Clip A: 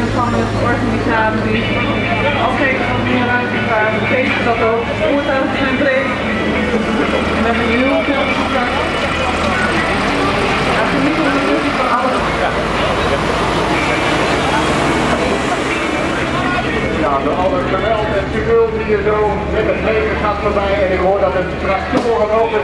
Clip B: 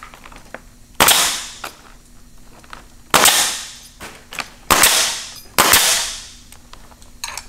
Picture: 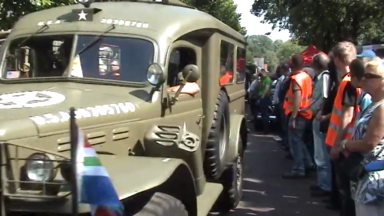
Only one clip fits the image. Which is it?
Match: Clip A